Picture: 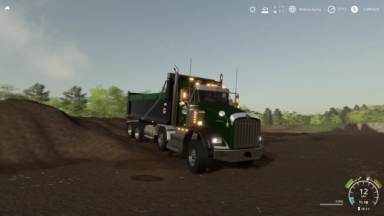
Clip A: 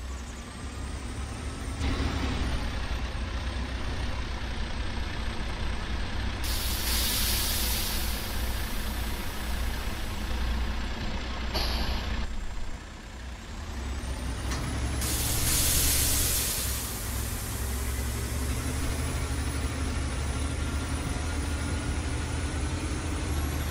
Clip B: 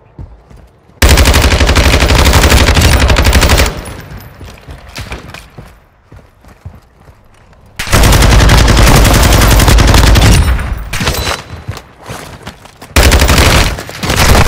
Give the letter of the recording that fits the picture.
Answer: A